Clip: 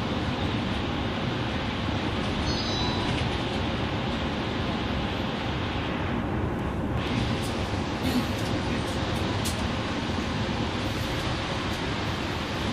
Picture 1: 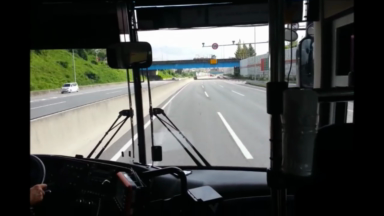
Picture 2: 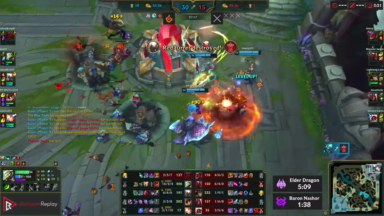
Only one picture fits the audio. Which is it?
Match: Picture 1